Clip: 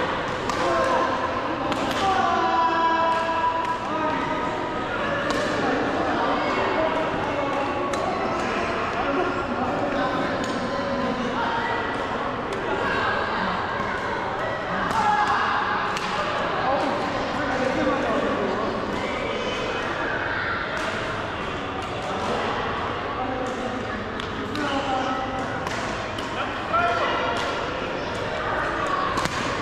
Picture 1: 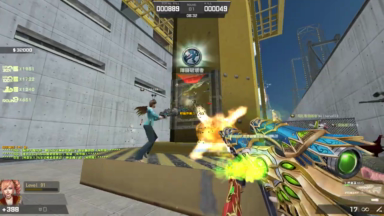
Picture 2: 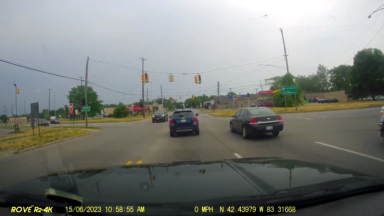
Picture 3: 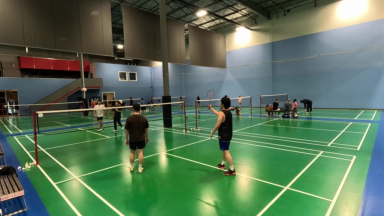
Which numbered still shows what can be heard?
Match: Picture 3